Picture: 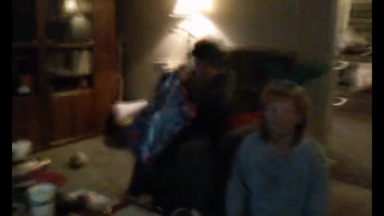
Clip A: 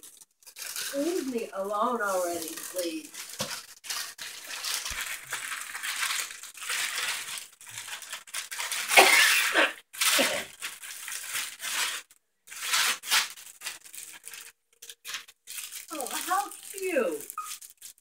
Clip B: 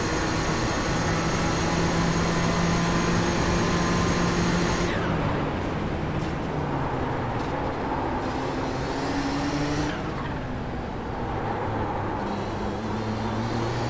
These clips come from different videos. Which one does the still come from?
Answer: A